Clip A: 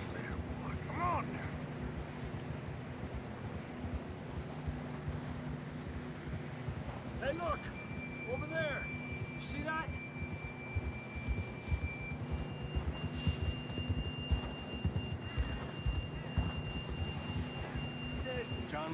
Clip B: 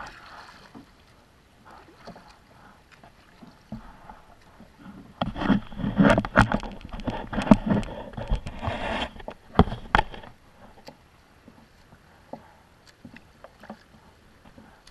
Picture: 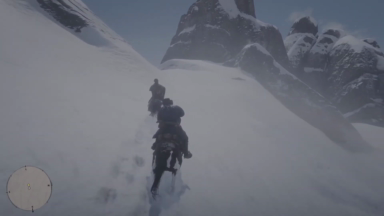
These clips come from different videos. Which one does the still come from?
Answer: A